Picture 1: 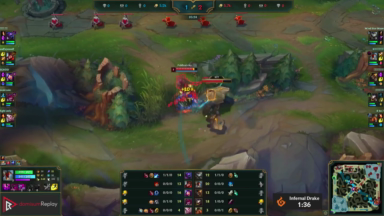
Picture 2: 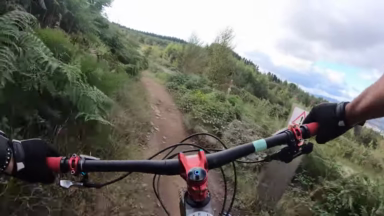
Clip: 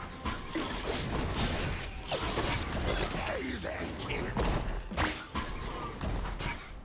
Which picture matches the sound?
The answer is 1